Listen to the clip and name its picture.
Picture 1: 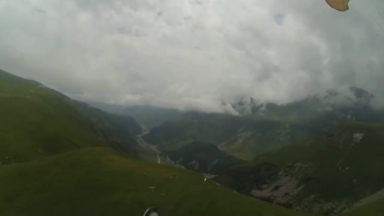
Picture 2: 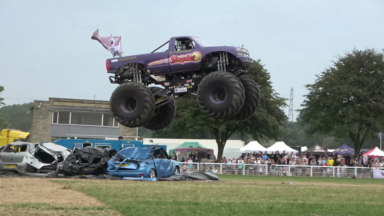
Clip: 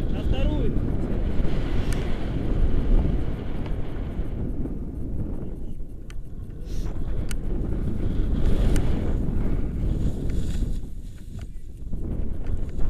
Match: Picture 1